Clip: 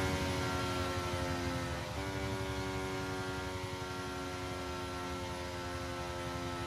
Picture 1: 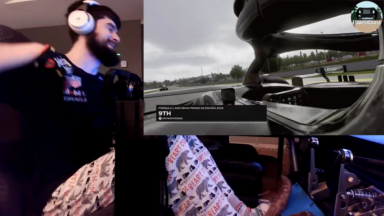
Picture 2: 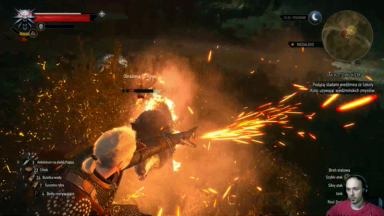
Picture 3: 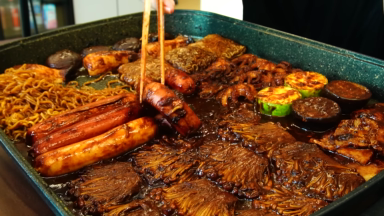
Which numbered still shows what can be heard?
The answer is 1